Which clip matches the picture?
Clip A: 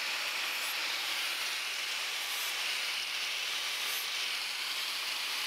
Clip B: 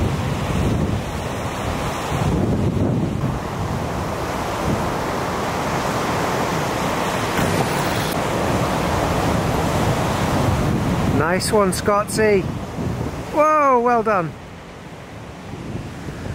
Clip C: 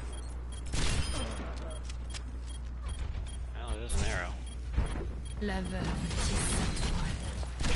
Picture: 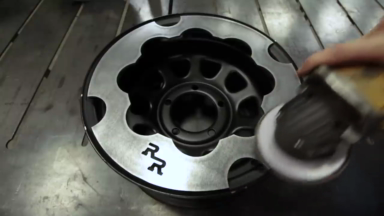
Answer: A